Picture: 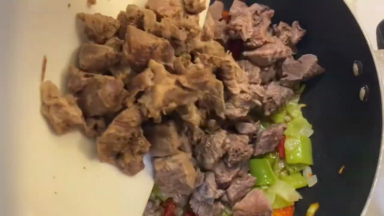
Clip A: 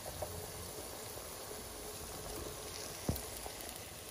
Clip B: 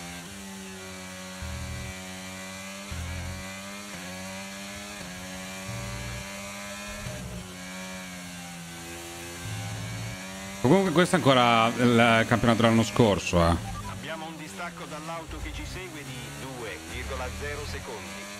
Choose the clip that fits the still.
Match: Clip A